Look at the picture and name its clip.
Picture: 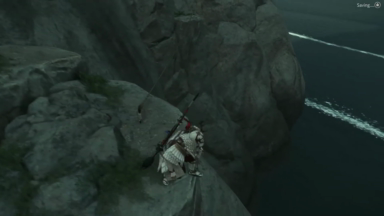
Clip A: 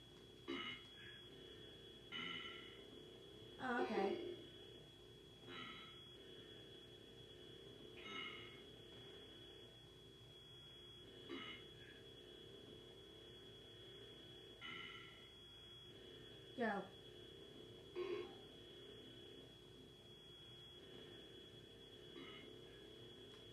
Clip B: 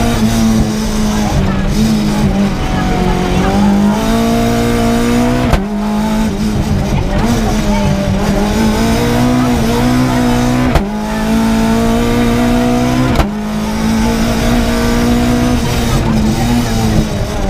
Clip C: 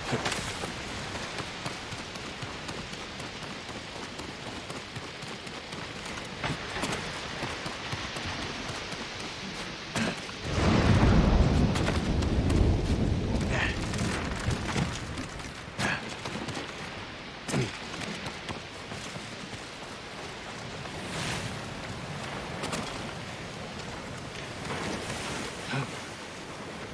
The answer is C